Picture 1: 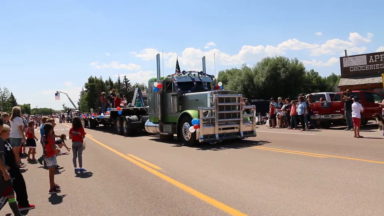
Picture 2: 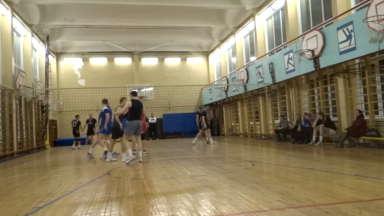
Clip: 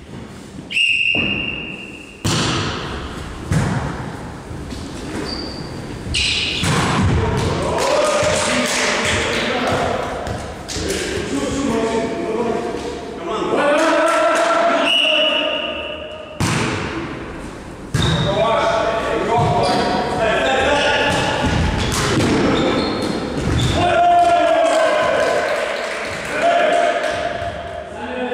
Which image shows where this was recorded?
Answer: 2